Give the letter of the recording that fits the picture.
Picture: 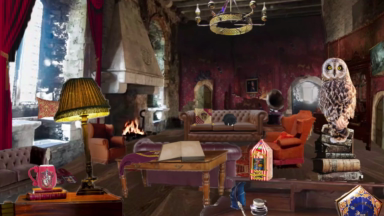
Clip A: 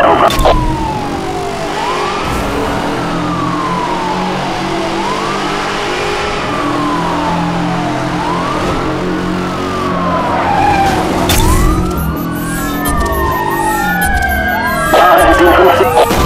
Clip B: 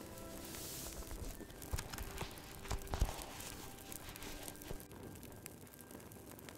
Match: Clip B